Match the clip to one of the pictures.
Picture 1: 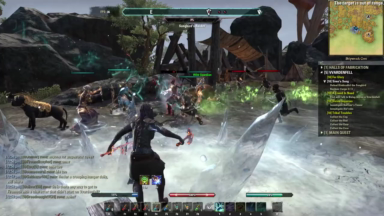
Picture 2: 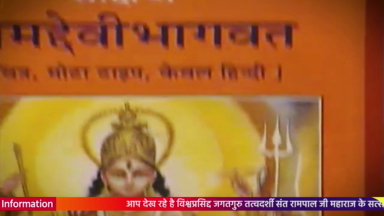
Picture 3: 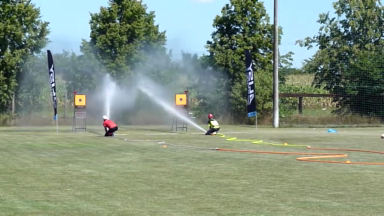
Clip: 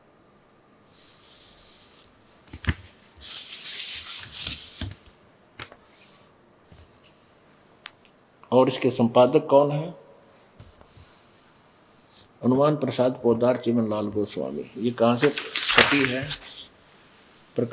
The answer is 2